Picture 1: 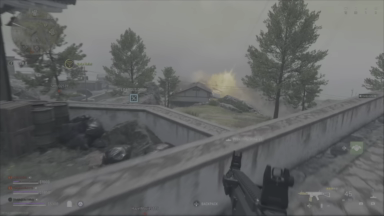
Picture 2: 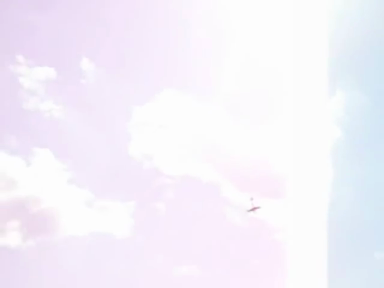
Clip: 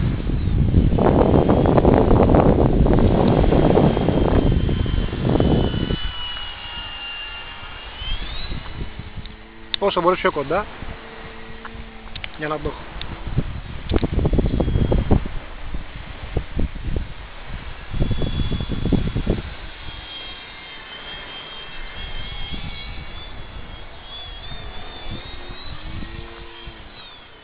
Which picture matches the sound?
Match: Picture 2